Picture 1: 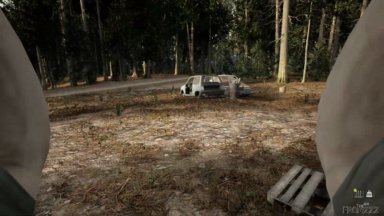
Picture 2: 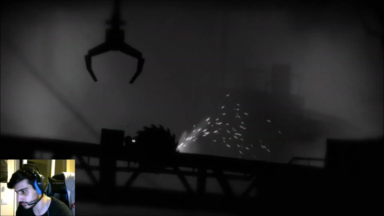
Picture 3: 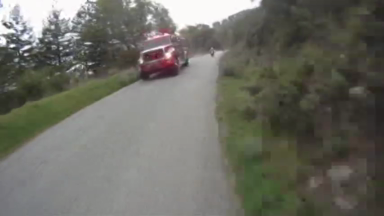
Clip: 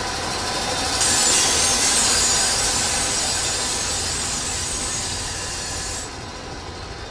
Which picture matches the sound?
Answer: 2